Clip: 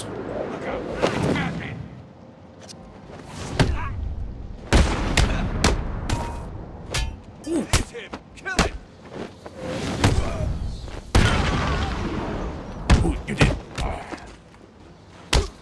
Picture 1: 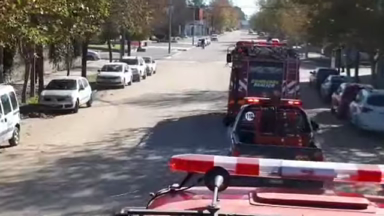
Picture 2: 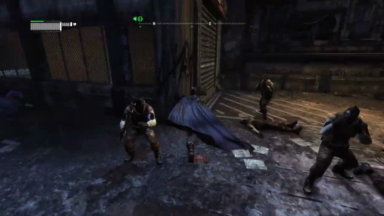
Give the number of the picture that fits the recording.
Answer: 2